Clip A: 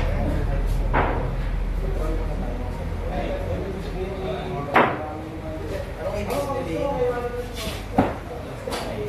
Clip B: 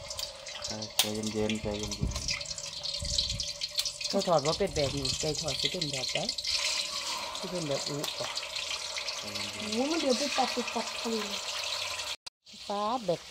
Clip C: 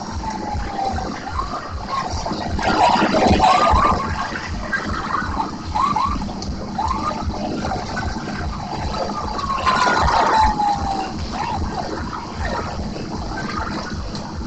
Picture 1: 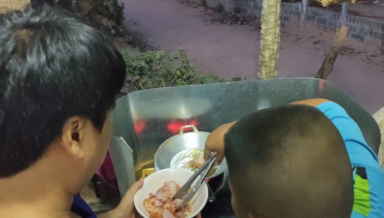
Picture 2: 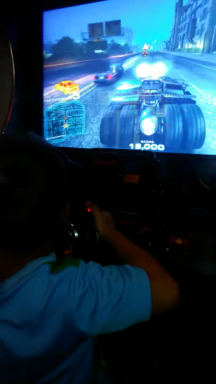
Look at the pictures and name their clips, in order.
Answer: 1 B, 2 C